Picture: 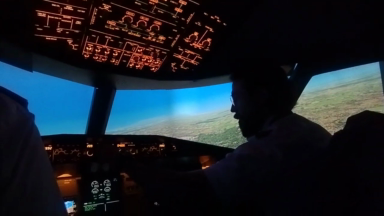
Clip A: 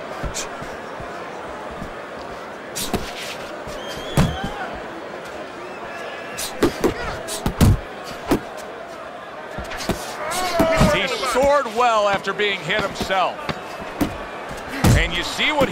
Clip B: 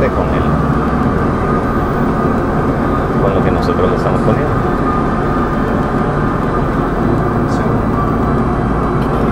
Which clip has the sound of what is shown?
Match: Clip B